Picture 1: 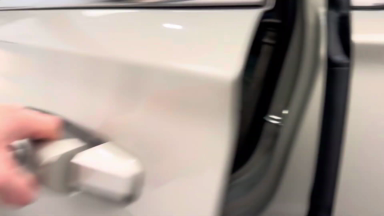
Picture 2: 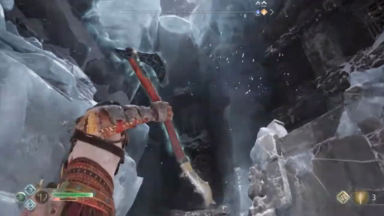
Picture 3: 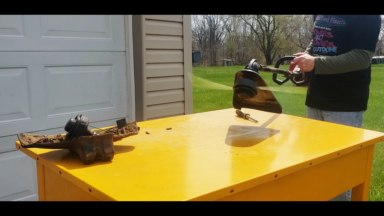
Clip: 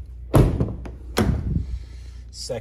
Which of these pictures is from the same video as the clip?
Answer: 1